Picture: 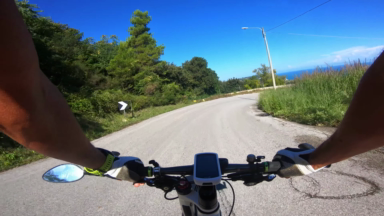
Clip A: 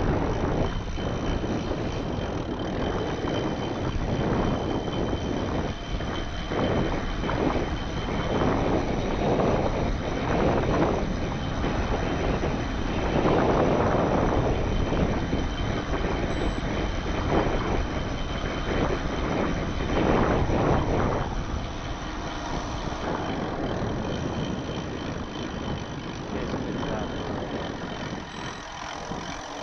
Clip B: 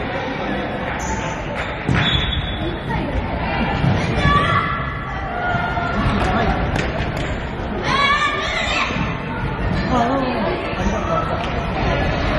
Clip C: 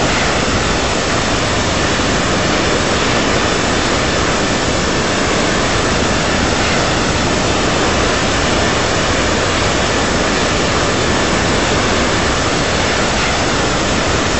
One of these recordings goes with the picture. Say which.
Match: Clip A